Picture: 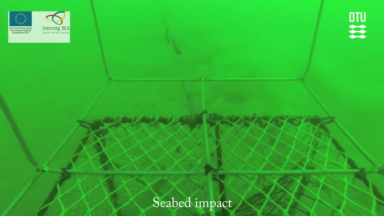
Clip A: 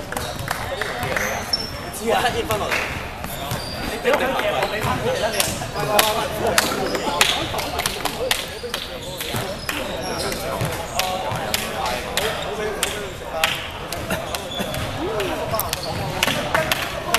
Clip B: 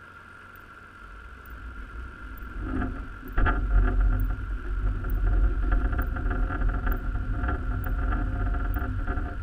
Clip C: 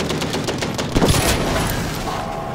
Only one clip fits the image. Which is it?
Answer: B